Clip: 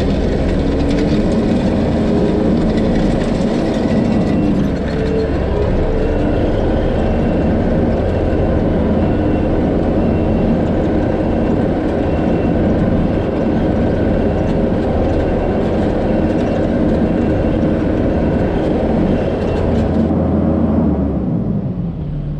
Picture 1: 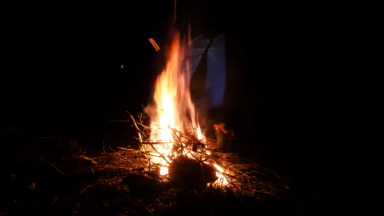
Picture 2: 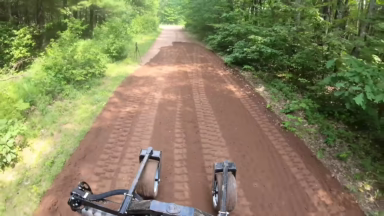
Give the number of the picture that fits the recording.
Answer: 2